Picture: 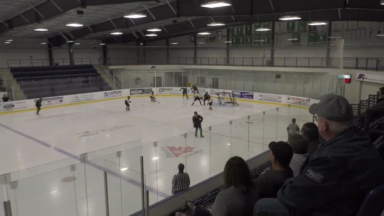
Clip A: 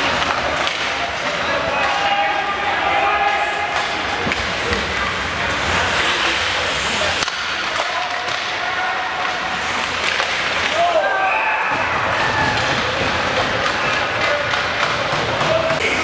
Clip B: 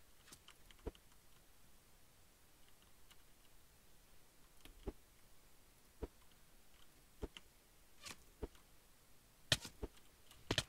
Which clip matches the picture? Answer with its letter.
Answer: A